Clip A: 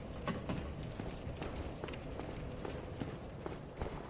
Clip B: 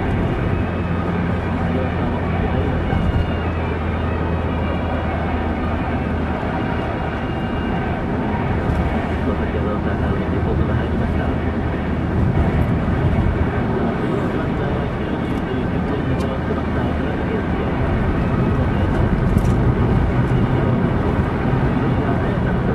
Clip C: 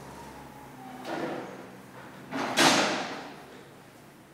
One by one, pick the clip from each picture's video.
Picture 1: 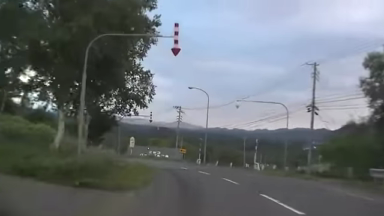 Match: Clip B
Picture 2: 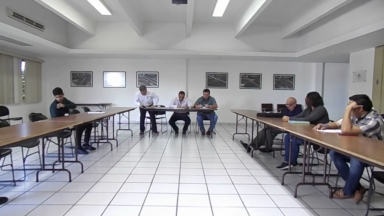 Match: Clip C